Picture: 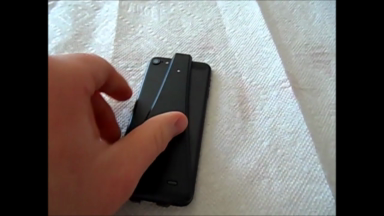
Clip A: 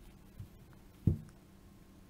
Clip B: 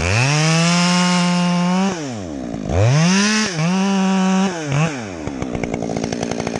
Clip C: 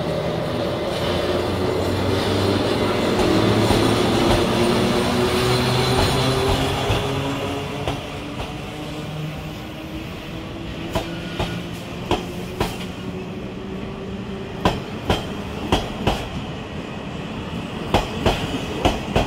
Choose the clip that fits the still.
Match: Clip A